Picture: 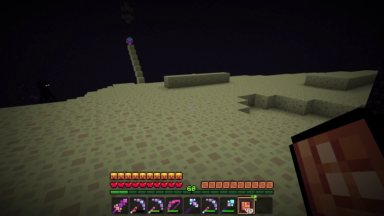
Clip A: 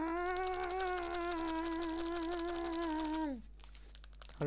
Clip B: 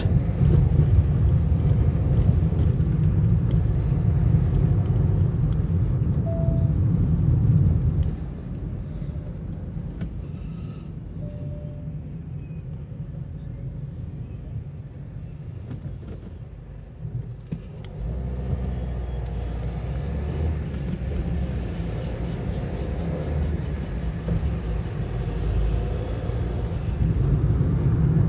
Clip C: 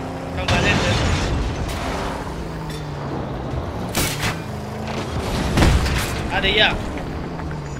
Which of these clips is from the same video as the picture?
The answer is A